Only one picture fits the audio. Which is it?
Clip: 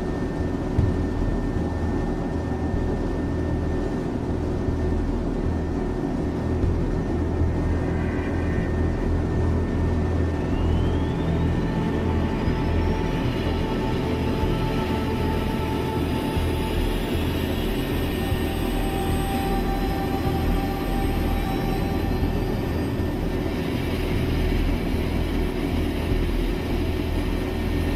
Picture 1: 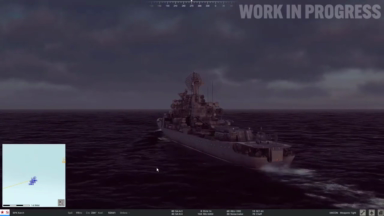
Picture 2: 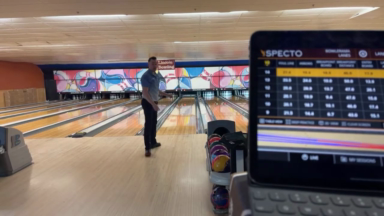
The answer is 1